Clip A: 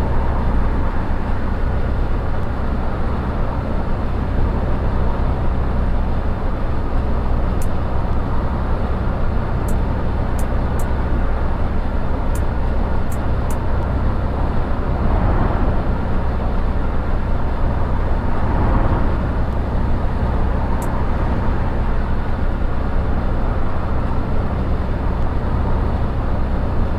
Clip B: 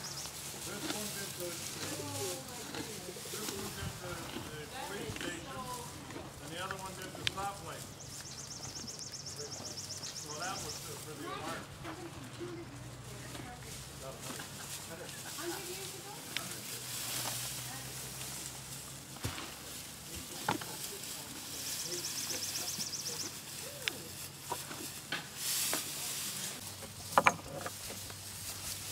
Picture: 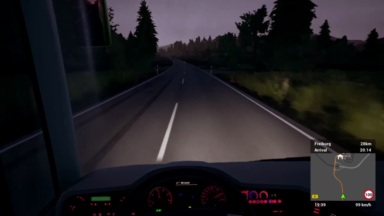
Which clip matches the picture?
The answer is A